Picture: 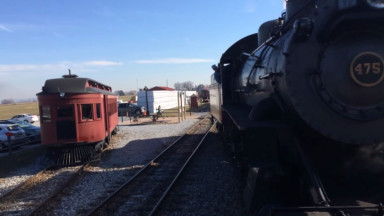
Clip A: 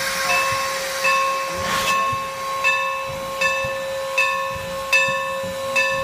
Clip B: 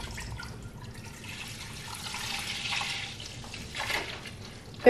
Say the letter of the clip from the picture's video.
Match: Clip A